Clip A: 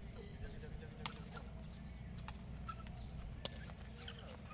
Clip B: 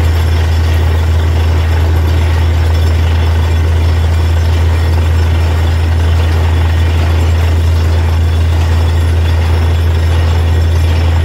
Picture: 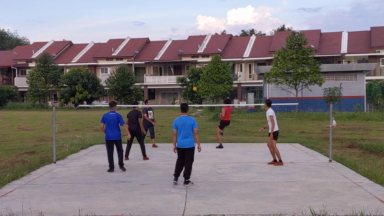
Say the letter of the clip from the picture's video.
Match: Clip A